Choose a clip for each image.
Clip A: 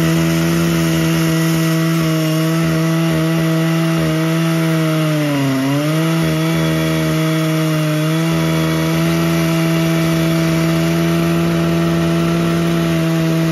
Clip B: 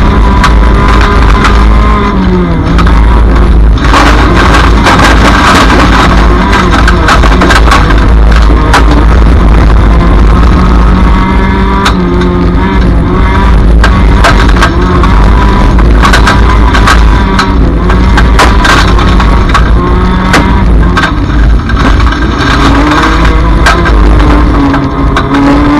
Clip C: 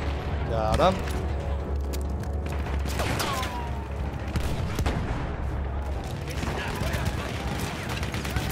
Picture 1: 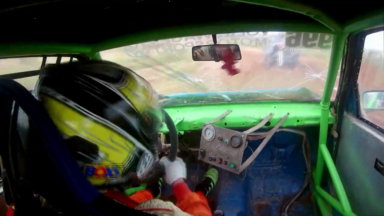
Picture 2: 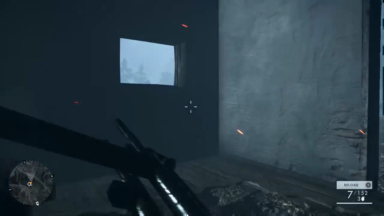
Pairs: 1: B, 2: C